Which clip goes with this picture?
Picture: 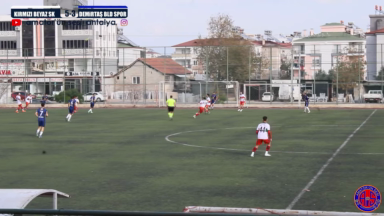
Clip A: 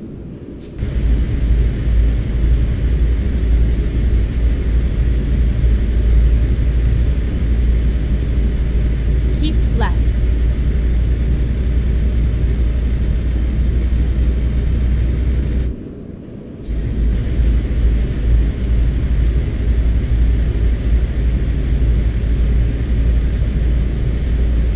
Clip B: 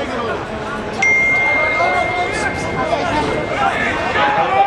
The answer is B